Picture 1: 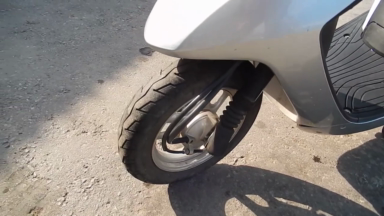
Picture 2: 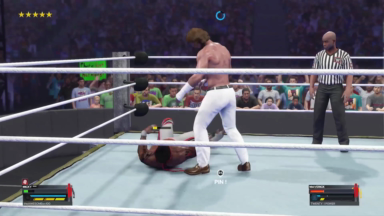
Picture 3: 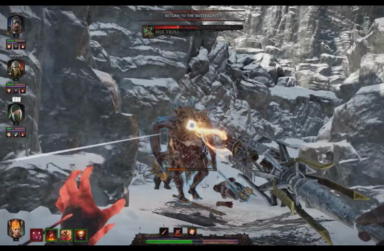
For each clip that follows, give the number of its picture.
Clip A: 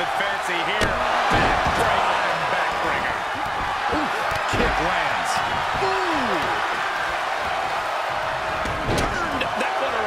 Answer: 2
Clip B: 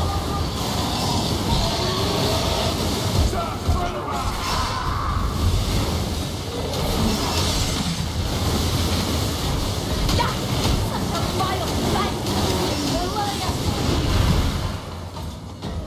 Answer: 3